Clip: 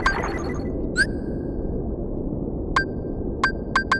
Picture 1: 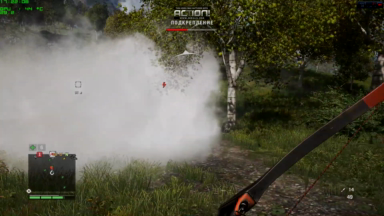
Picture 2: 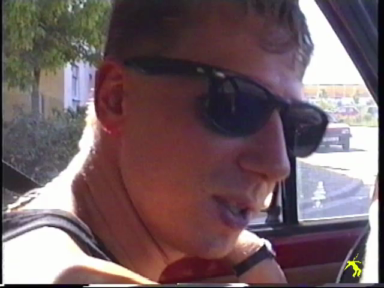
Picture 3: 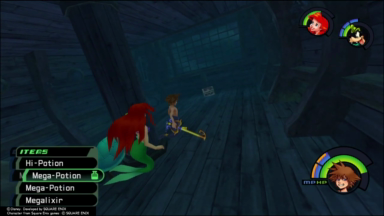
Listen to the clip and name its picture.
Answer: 3